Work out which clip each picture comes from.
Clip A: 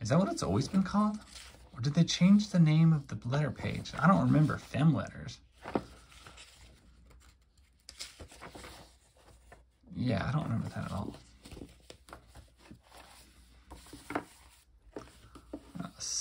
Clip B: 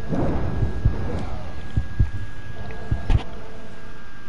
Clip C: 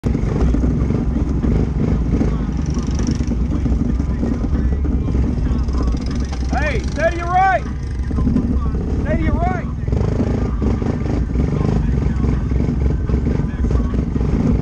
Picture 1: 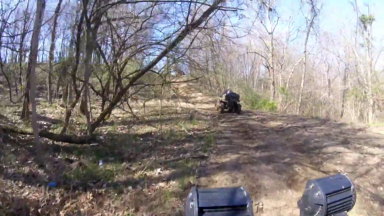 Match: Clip C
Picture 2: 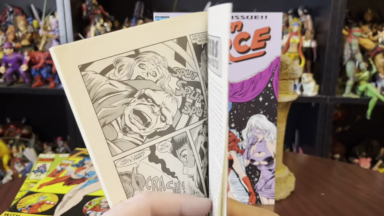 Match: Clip A